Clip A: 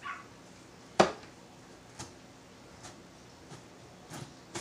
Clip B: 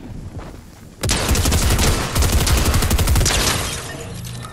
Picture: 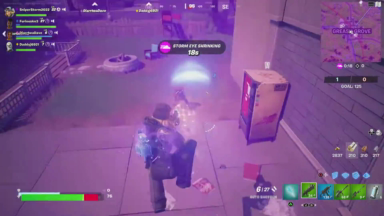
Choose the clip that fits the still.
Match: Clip B